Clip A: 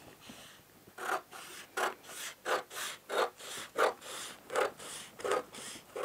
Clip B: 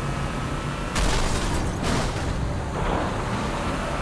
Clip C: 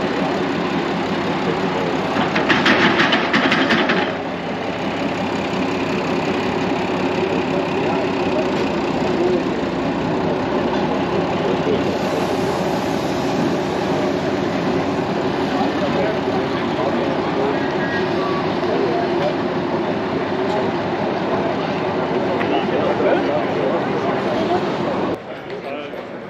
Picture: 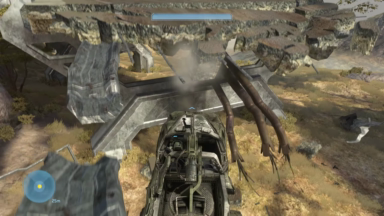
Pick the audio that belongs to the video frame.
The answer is B